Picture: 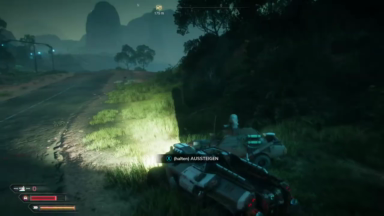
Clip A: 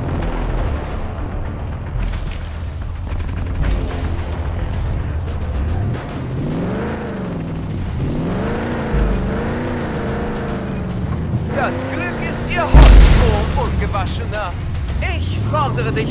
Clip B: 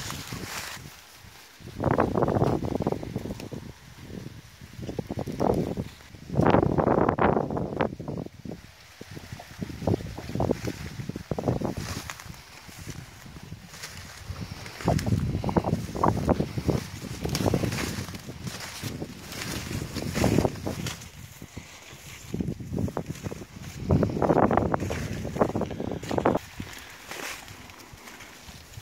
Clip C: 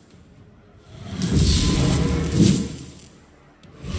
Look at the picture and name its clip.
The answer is A